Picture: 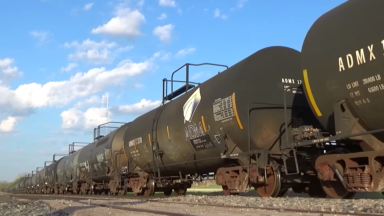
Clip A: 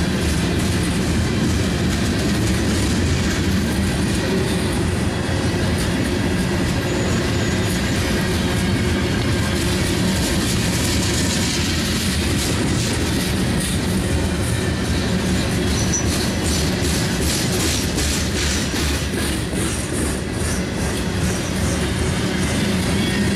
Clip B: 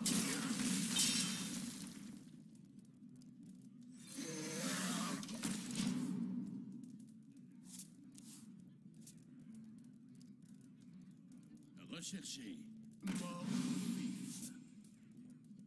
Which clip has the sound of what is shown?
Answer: A